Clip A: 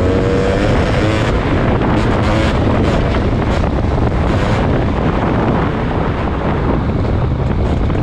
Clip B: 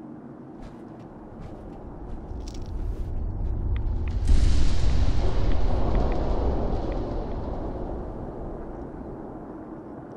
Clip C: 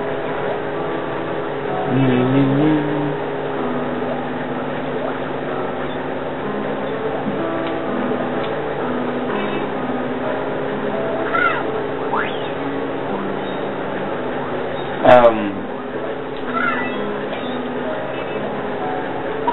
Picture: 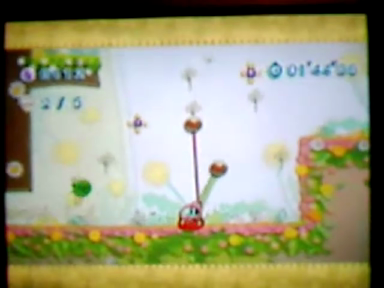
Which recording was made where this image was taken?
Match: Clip C